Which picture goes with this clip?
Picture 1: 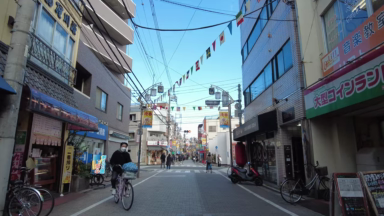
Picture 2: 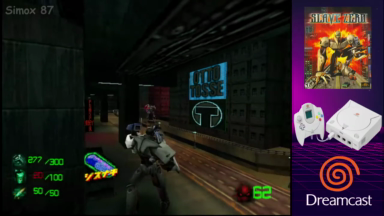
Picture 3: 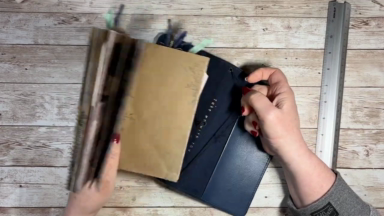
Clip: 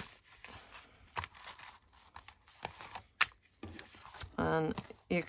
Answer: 3